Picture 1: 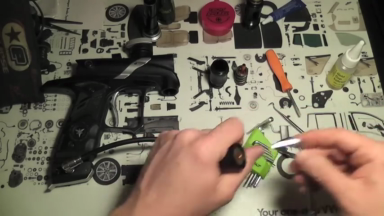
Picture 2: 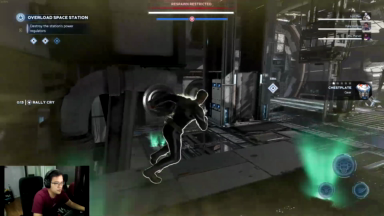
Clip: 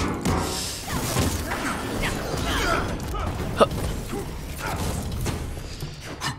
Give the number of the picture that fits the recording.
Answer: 2